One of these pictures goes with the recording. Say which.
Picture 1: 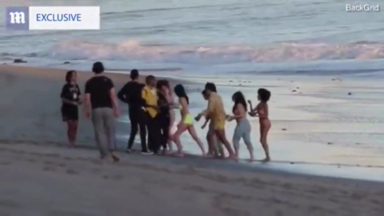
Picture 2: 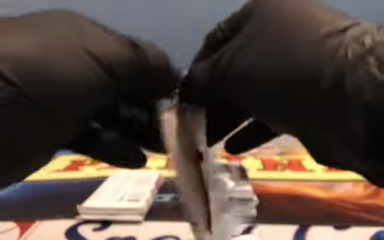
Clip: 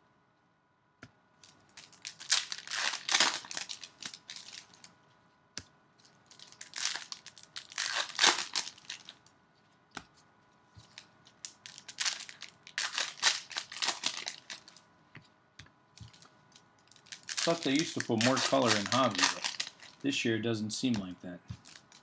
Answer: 2